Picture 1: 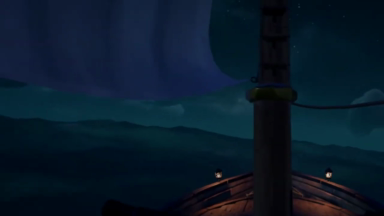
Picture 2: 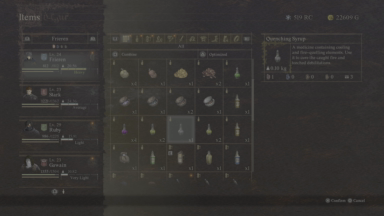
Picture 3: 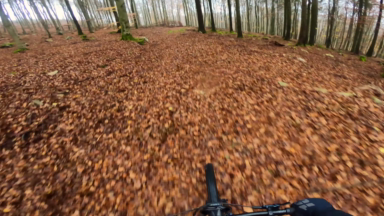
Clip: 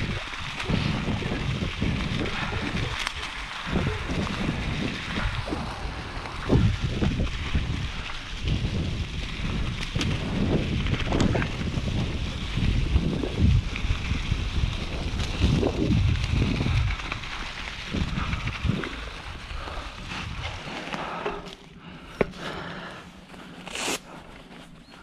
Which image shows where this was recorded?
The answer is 3